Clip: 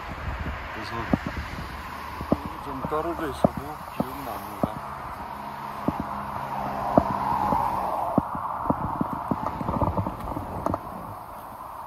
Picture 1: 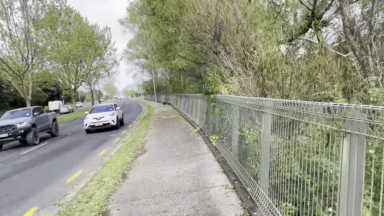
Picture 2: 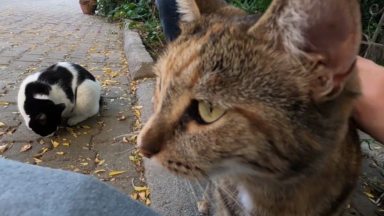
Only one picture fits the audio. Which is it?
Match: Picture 1